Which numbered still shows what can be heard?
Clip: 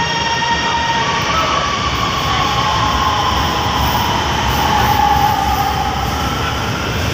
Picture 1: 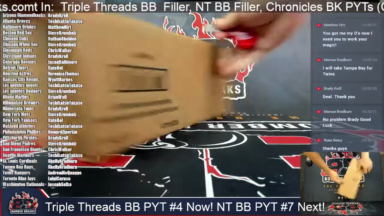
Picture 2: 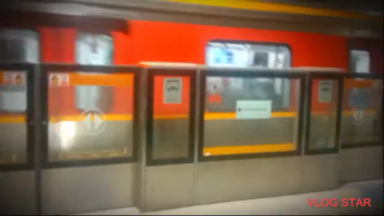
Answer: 2